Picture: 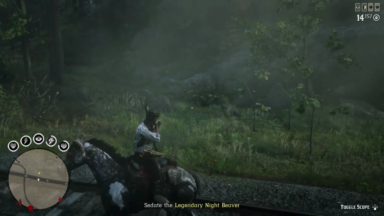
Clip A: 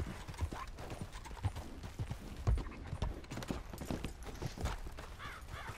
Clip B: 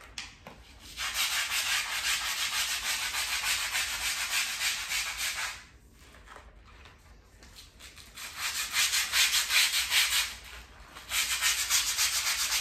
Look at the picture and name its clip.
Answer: A